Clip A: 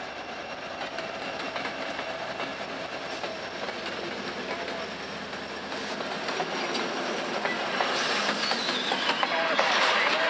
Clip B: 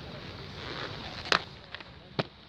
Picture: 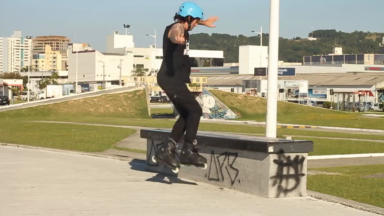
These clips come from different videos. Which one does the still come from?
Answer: B